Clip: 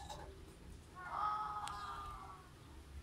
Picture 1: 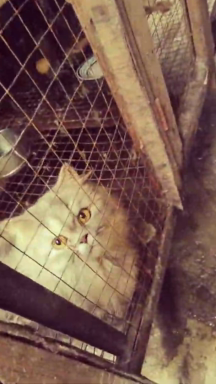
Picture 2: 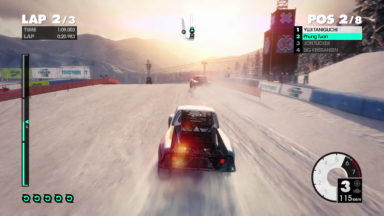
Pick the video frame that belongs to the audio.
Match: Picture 1